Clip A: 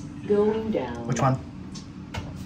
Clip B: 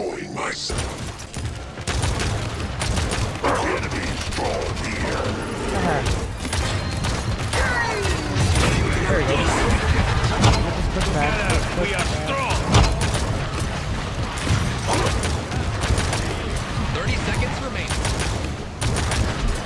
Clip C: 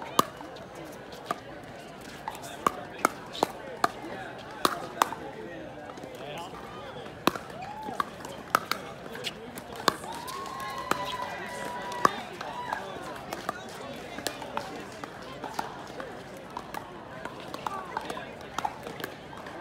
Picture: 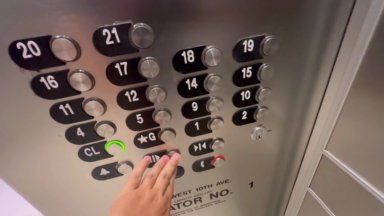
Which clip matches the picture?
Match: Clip A